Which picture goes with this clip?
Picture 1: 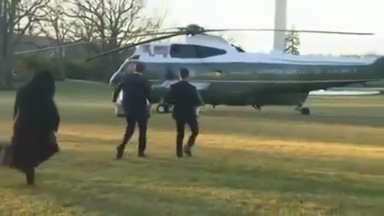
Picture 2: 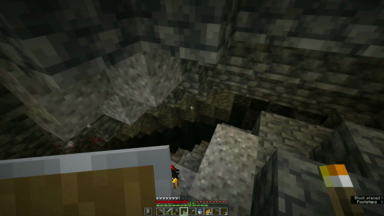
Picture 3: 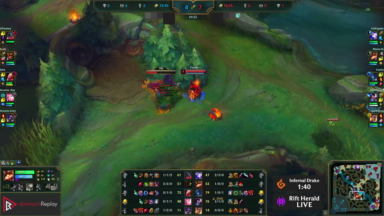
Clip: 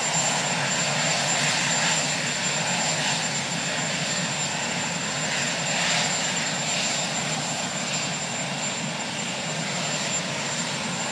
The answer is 1